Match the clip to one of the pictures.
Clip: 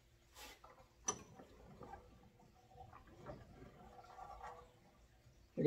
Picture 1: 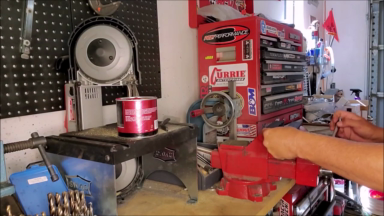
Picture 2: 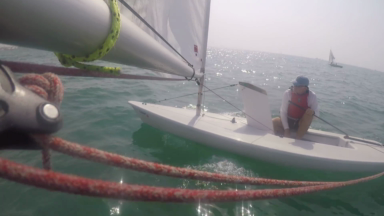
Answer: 1